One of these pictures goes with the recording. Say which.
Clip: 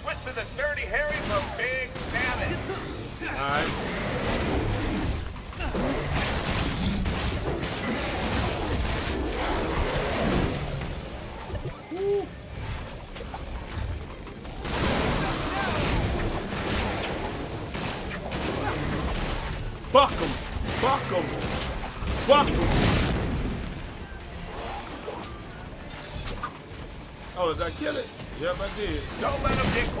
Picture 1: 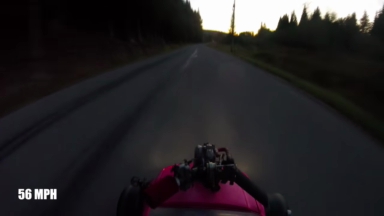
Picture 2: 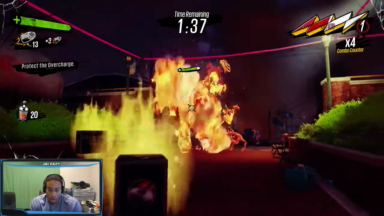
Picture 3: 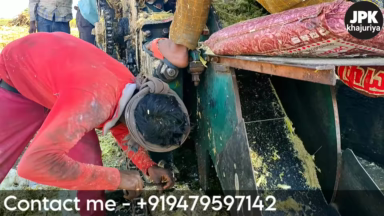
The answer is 2